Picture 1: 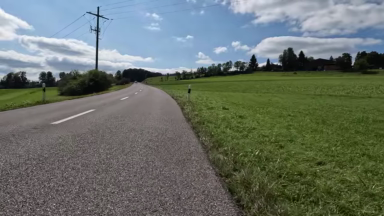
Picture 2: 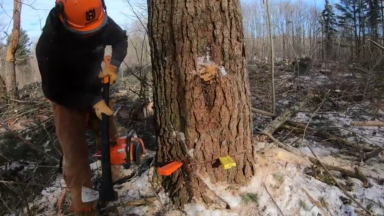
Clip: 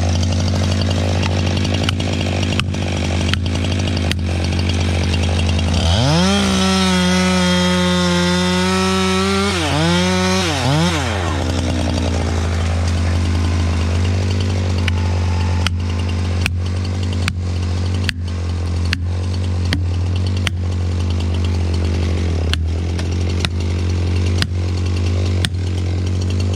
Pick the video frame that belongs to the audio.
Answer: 2